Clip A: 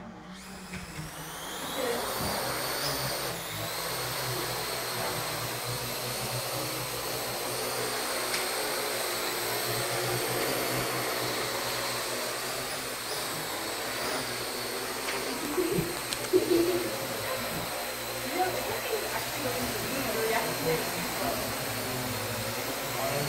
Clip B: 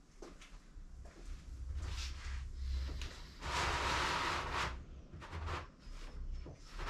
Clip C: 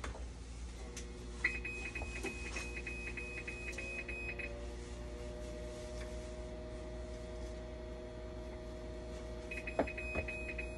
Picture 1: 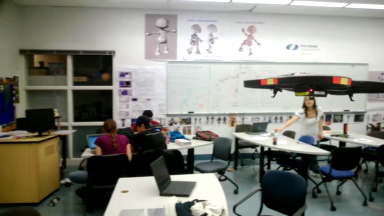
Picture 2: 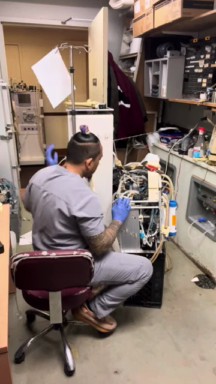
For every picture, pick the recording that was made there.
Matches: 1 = A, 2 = C